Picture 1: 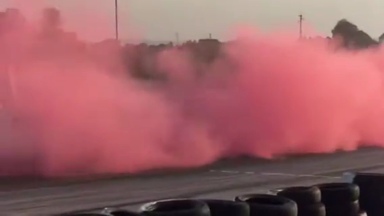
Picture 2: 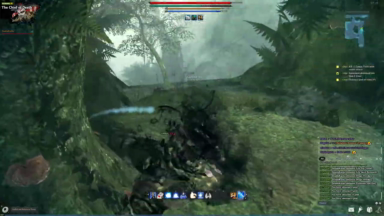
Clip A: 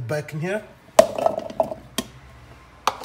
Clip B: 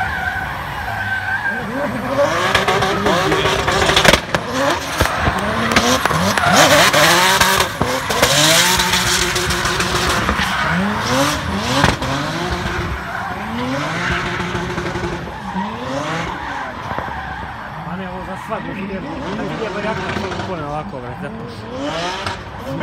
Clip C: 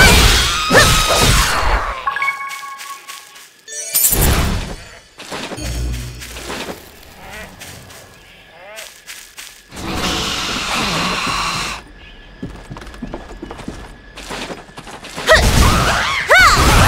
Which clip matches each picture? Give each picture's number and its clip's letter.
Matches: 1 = B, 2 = C